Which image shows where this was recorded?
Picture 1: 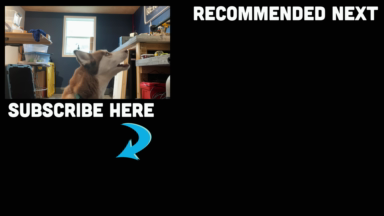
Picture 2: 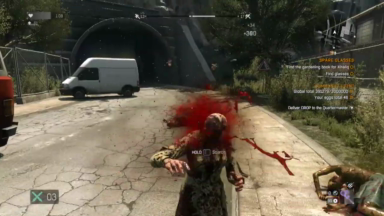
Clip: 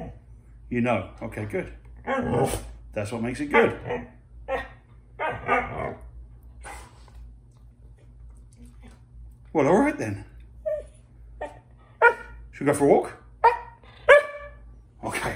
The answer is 1